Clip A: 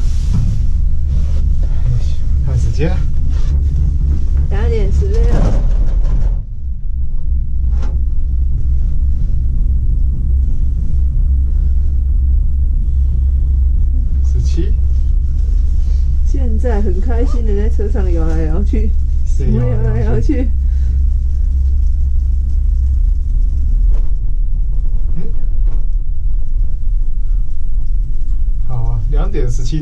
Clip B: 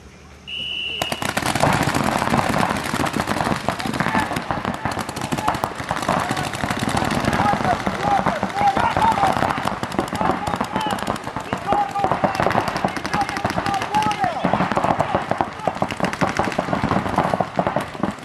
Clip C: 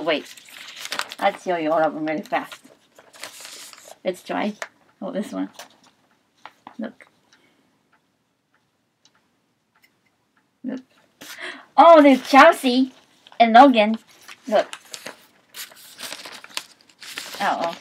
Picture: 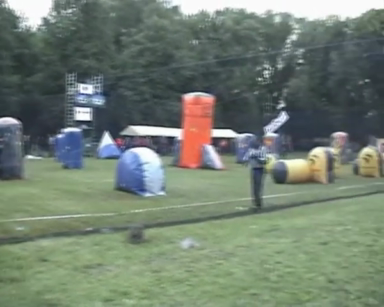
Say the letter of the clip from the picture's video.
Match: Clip B